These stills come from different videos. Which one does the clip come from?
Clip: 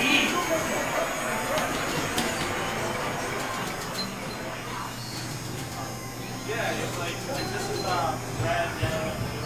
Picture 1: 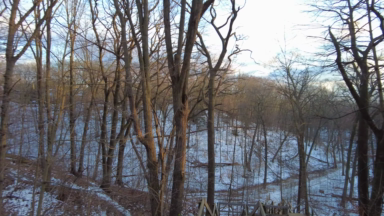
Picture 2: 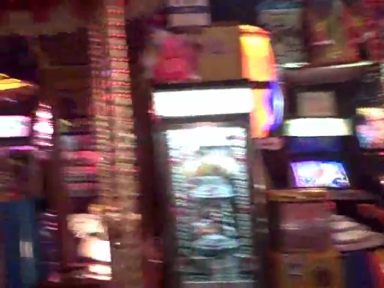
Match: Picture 2